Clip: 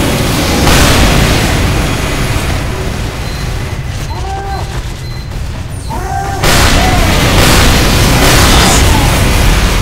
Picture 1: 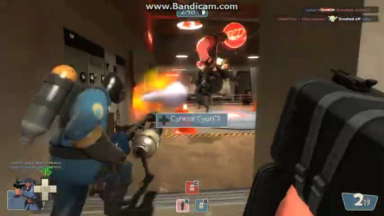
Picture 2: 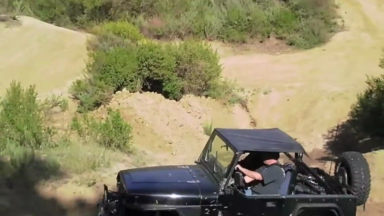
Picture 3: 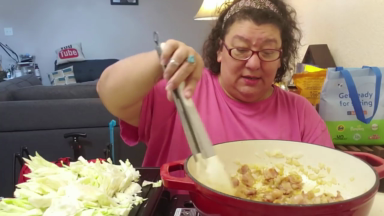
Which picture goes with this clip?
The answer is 1